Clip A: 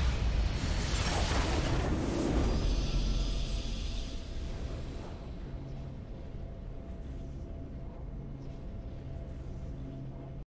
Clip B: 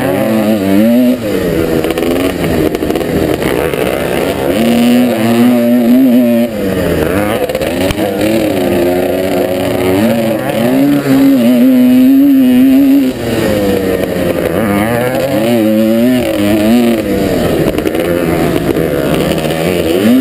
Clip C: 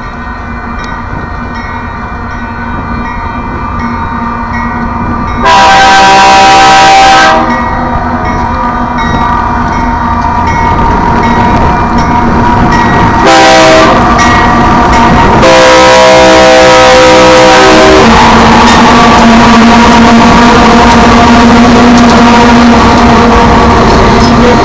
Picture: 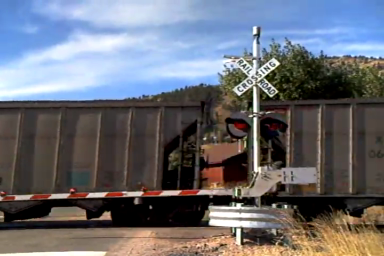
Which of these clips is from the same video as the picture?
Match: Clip C